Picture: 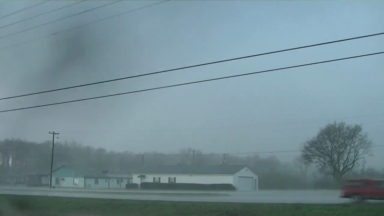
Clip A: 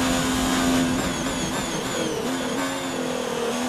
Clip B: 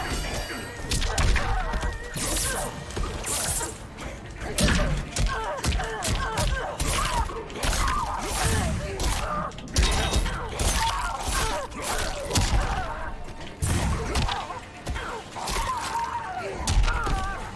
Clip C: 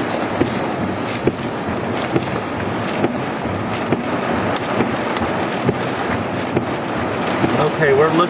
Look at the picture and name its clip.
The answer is C